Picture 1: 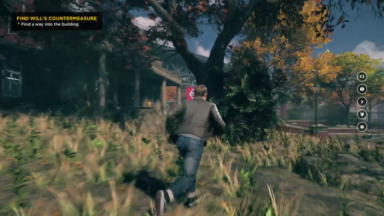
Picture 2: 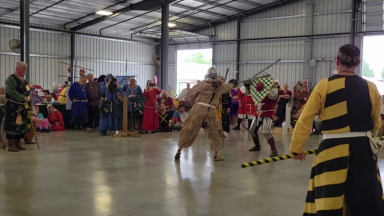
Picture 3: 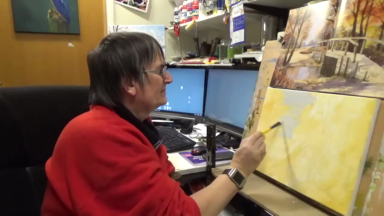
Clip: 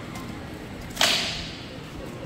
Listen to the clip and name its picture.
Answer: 2